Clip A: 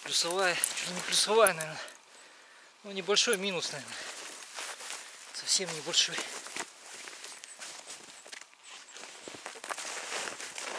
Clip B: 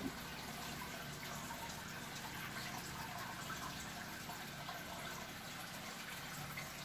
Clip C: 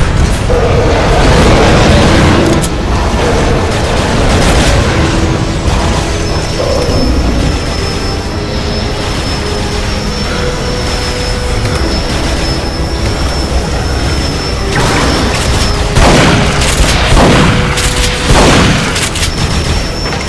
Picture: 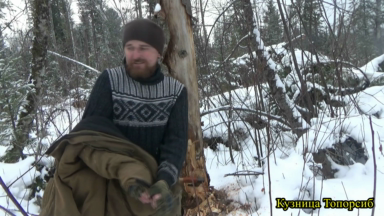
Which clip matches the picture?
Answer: A